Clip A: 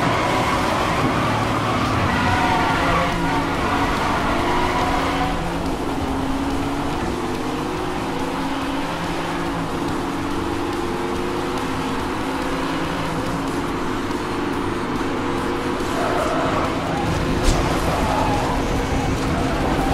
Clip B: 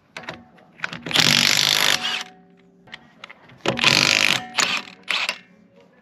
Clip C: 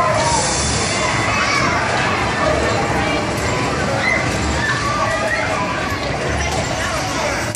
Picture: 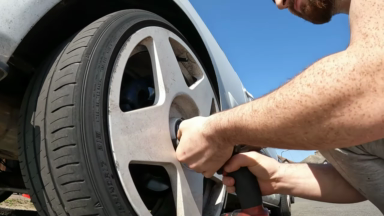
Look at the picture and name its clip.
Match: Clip B